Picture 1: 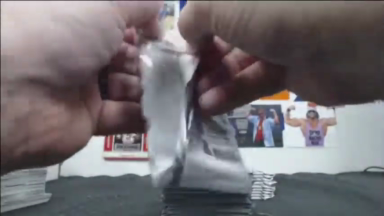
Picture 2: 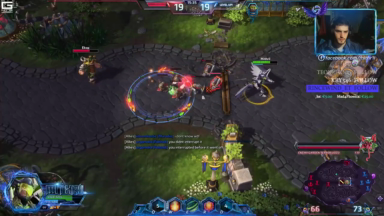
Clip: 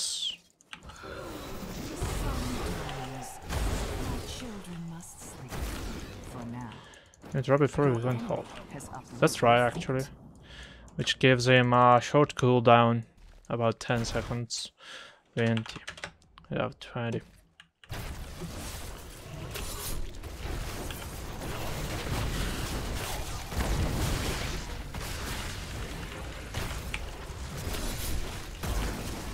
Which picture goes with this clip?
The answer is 2